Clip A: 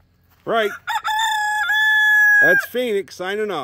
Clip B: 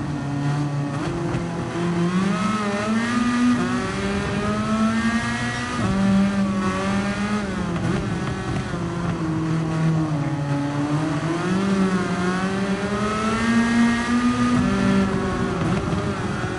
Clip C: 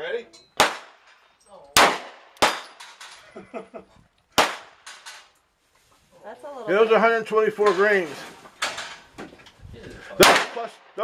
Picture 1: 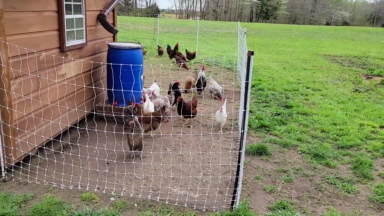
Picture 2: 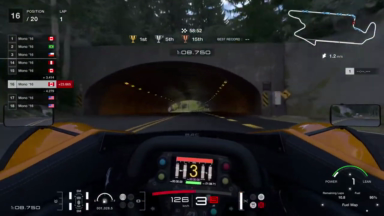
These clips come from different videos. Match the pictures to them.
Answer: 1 A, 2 B